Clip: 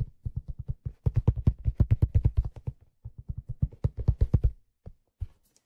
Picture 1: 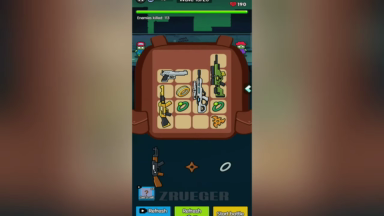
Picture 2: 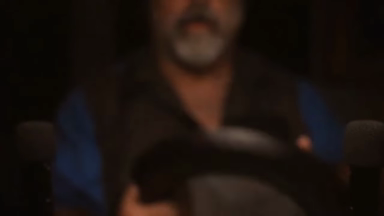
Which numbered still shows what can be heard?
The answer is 2